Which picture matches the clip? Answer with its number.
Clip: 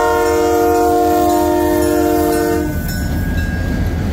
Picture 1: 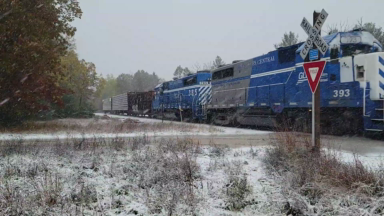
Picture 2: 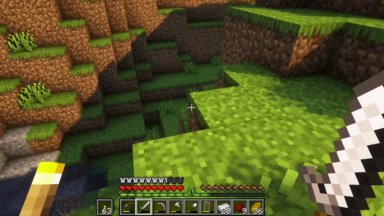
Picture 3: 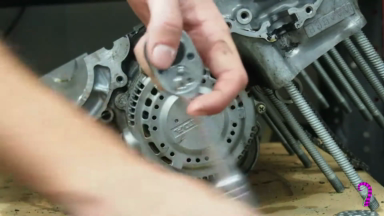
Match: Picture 1